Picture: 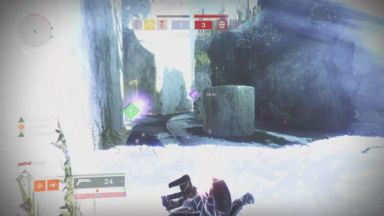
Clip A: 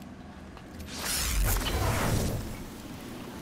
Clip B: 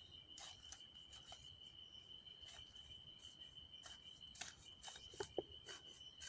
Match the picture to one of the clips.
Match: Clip A